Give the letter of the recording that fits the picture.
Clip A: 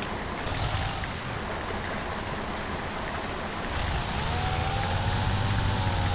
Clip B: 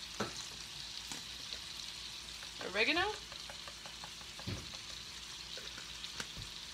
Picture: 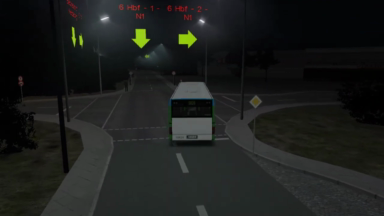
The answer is A